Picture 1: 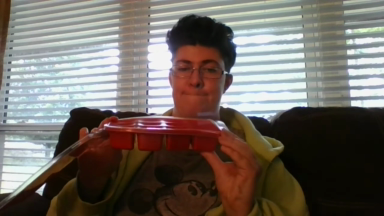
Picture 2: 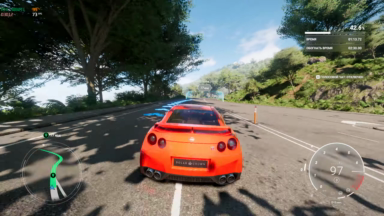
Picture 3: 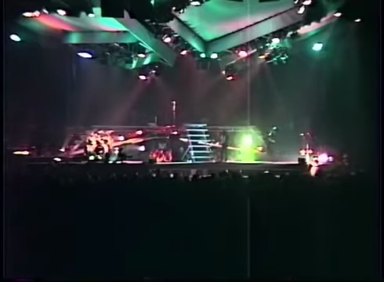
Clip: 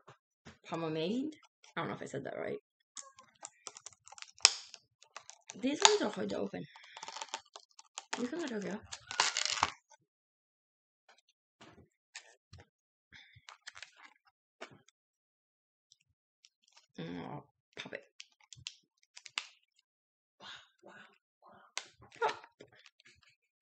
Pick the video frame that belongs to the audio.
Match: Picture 1